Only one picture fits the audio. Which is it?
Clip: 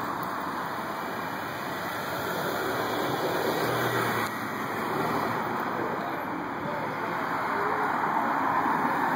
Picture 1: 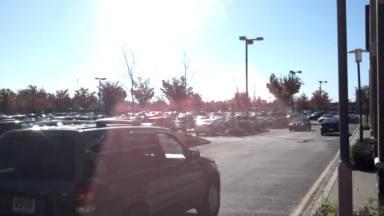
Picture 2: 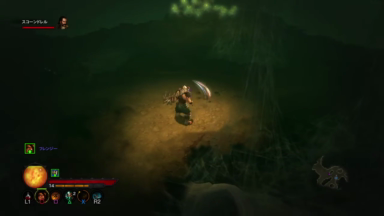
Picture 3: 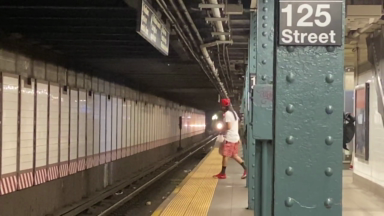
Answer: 1